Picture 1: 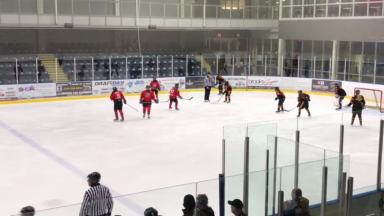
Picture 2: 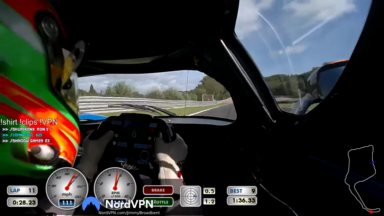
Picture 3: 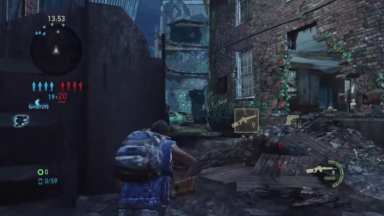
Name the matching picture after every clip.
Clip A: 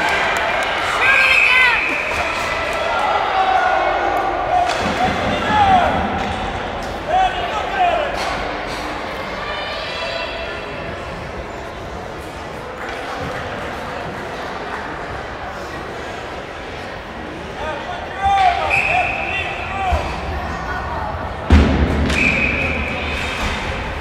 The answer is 1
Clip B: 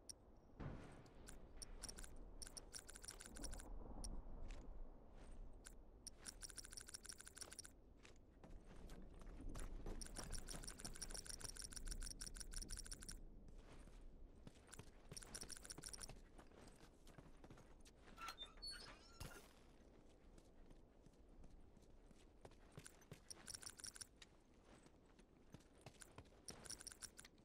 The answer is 3